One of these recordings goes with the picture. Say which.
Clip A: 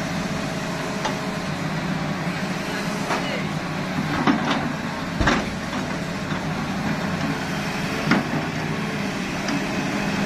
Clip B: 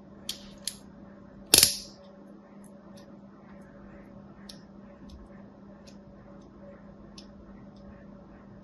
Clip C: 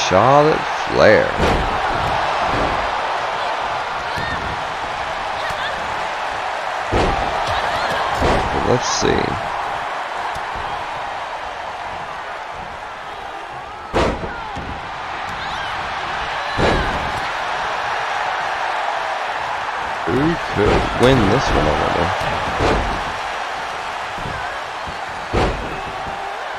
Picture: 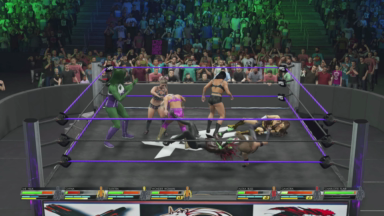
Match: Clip C